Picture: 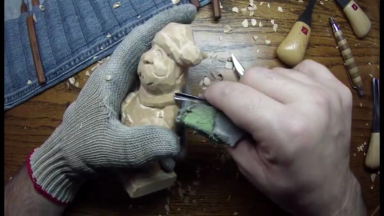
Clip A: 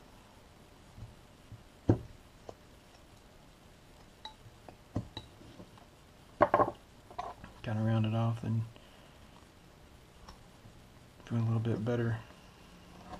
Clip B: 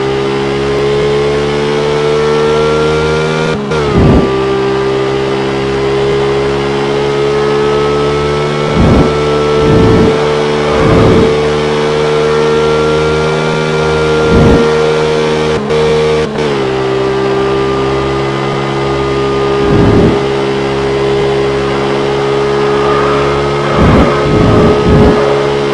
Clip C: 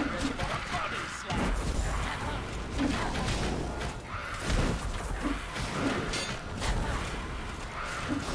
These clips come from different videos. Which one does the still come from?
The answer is A